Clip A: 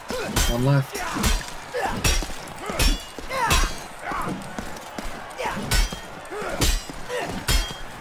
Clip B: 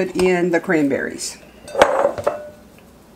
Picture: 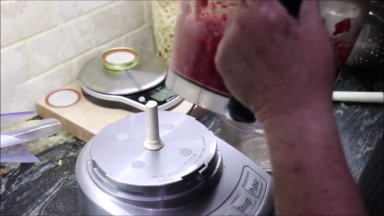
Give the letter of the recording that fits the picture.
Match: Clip B